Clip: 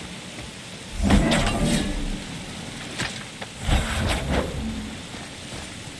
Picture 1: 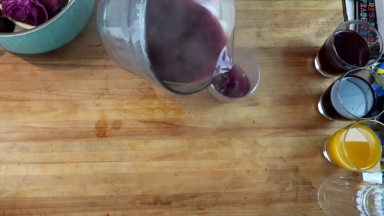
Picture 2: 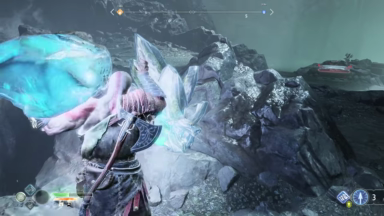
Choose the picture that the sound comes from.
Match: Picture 2